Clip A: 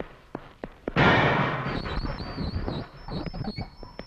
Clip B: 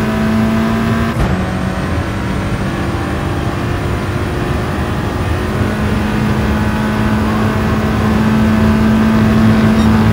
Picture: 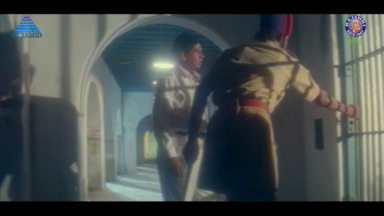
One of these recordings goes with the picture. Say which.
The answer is A